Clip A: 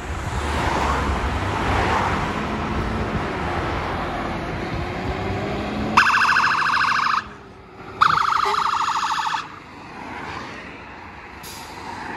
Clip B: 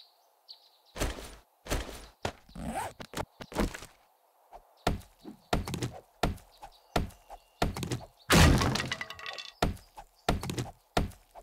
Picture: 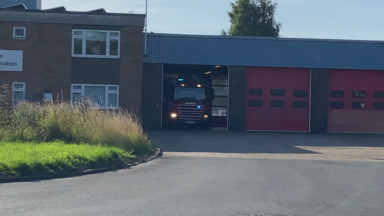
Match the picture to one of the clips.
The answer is A